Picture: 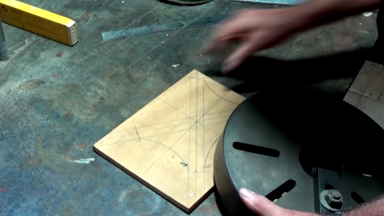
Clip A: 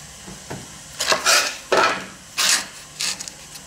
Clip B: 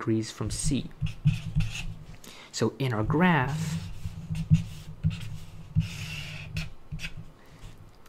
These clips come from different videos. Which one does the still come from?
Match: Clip A